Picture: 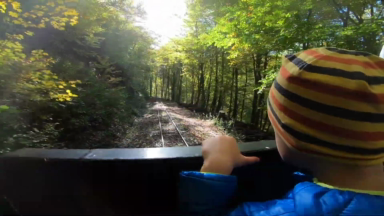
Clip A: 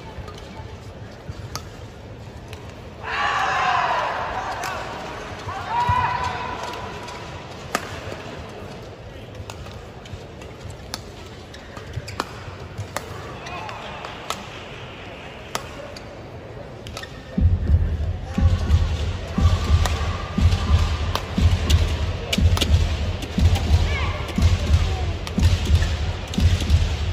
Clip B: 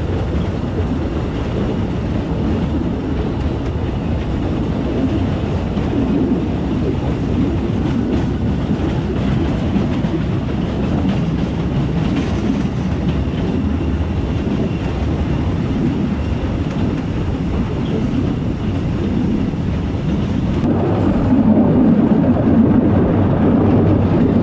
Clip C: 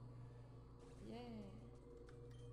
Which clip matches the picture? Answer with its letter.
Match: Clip B